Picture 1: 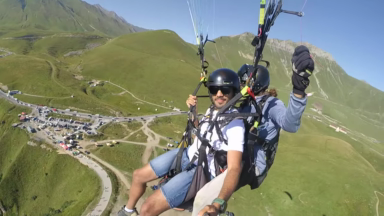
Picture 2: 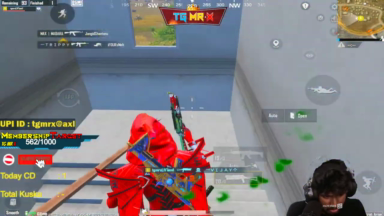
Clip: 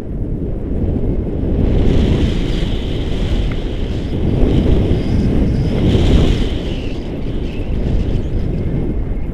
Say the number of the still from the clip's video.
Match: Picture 1